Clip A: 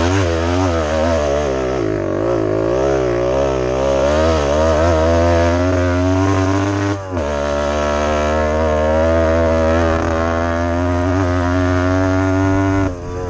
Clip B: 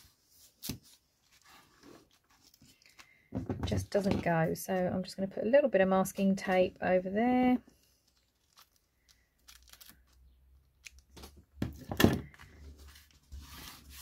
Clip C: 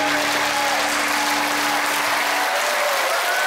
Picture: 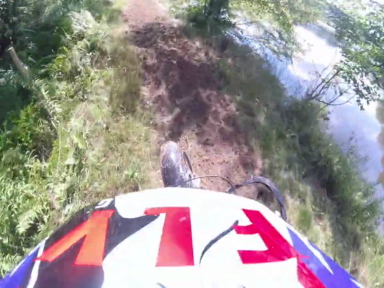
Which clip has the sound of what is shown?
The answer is A